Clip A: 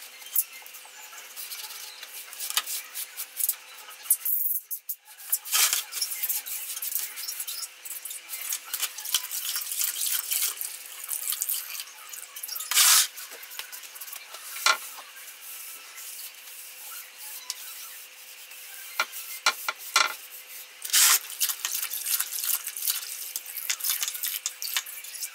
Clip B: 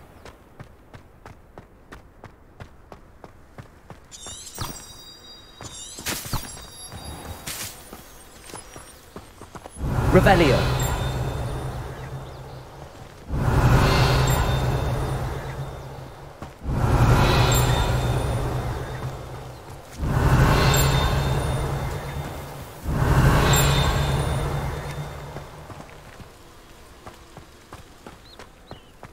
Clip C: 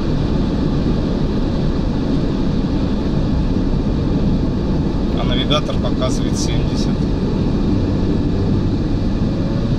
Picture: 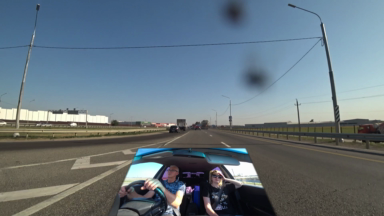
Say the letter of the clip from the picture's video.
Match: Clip C